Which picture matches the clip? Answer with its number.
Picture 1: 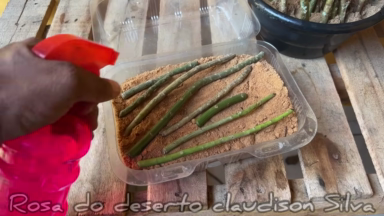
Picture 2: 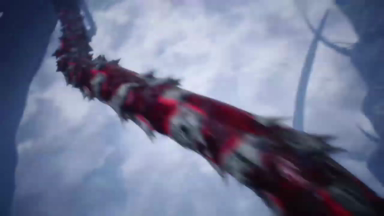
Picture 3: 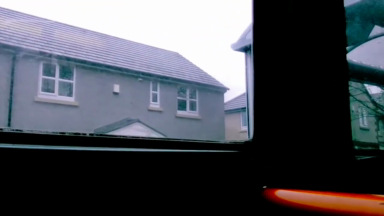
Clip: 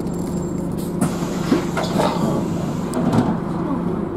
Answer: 3